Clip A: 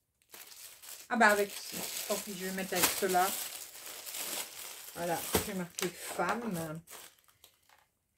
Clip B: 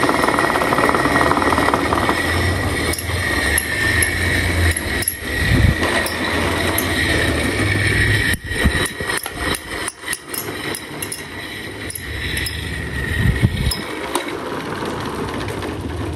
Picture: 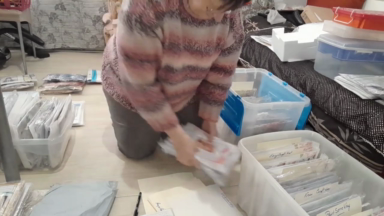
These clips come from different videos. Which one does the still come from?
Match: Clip A